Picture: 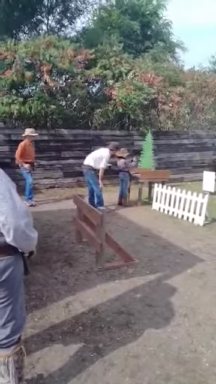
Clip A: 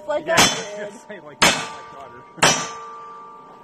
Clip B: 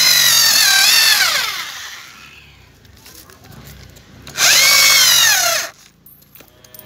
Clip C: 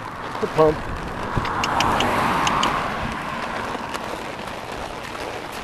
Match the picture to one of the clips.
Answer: A